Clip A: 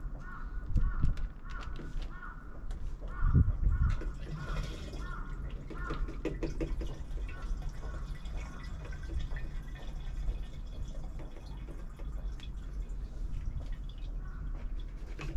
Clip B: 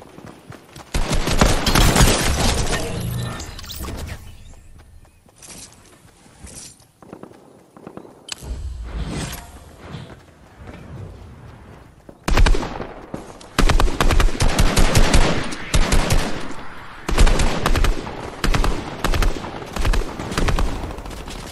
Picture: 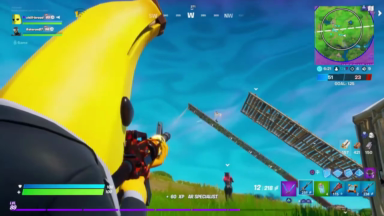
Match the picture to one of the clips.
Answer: B